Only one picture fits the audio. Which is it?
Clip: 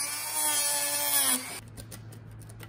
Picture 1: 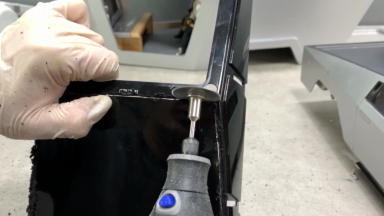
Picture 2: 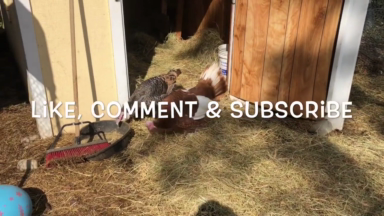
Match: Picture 1